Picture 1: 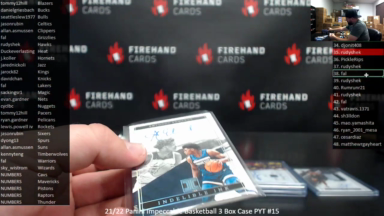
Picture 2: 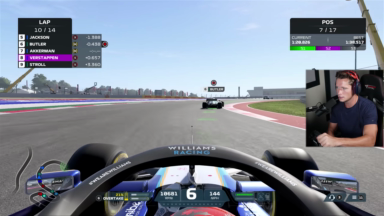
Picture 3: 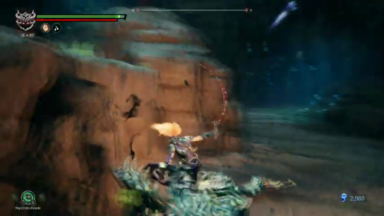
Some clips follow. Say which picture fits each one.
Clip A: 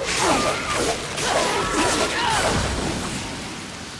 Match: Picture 3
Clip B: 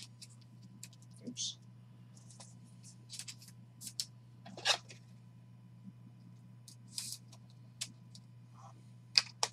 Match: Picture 1